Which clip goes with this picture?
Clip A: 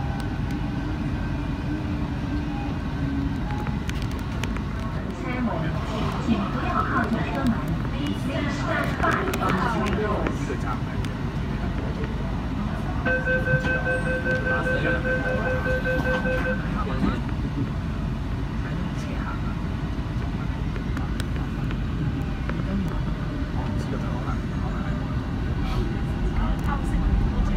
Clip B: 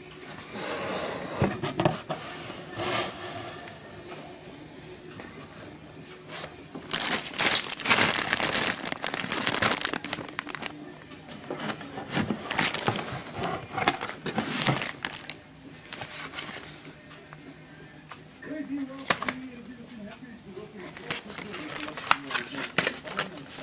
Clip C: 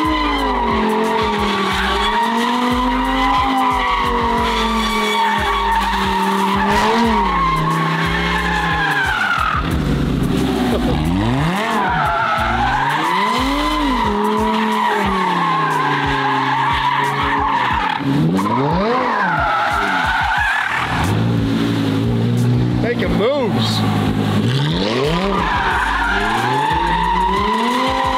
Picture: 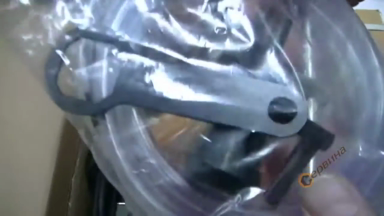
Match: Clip B